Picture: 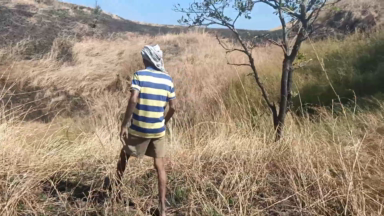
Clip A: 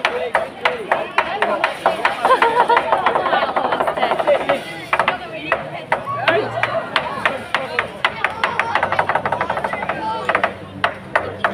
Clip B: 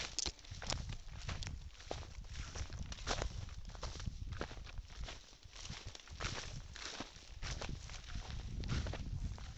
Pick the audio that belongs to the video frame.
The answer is B